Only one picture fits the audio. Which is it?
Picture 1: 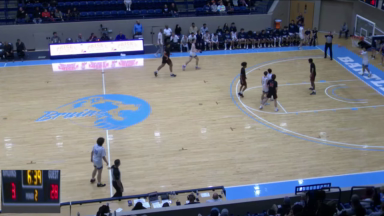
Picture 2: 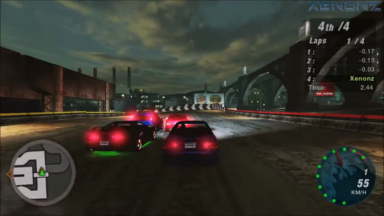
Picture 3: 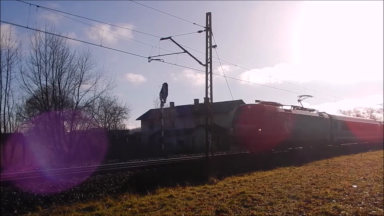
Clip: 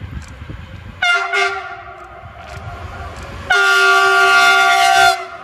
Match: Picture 3